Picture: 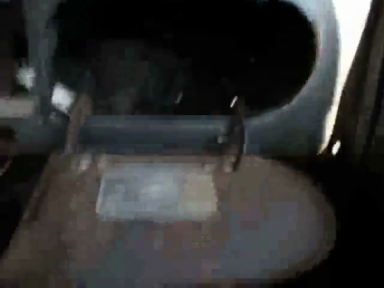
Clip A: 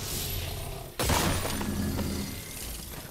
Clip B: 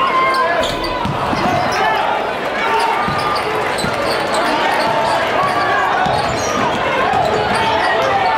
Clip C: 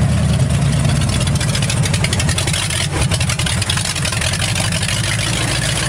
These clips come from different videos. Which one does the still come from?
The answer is C